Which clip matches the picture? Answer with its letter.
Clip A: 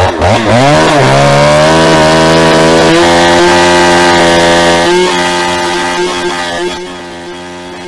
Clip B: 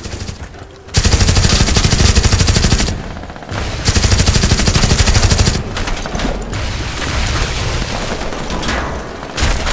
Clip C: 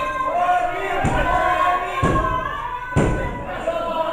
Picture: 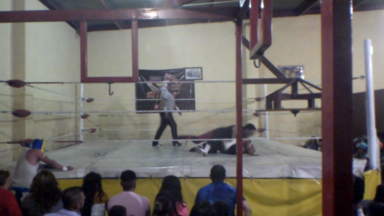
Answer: C